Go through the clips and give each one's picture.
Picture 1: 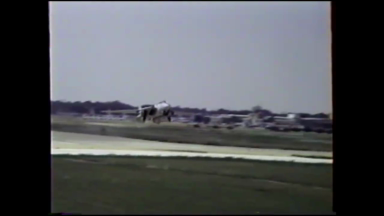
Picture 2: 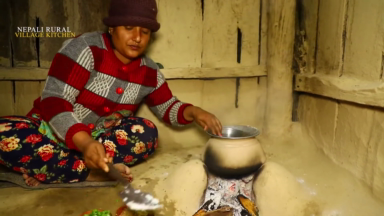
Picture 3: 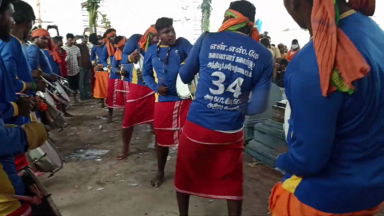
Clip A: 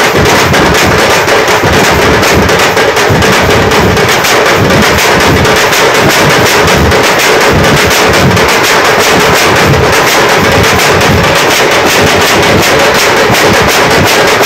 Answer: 3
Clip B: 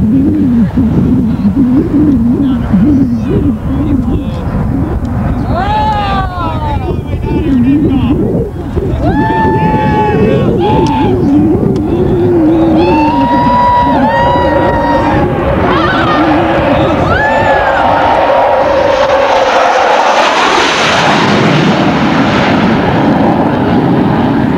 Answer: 1